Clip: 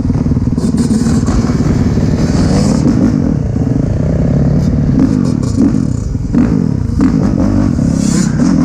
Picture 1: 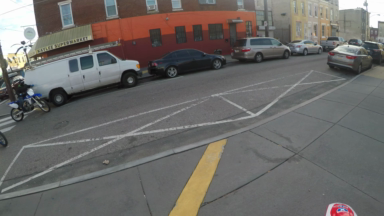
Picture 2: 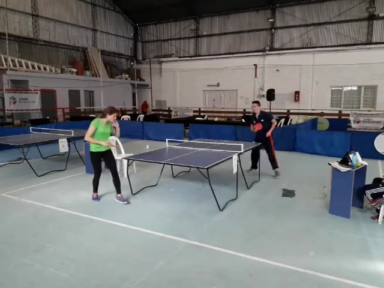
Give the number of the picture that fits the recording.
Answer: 1